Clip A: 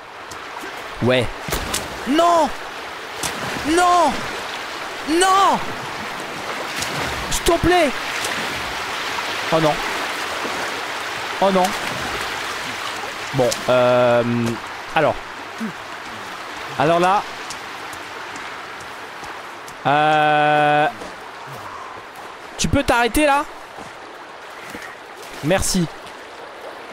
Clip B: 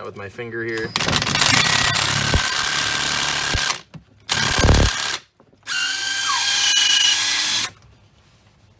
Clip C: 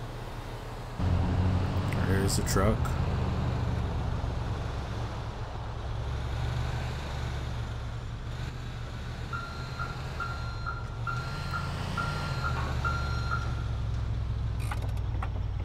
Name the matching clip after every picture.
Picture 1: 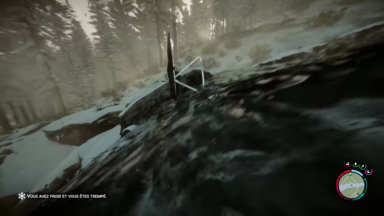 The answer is A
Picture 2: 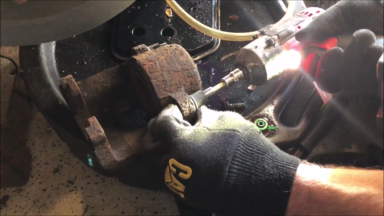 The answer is B